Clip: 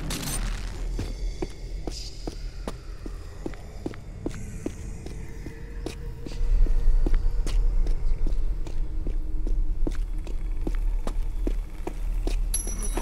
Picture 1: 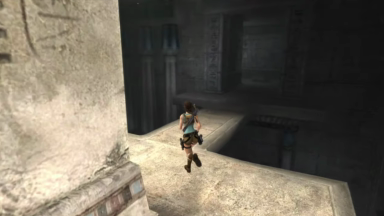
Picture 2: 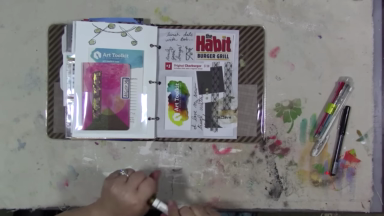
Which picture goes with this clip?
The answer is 1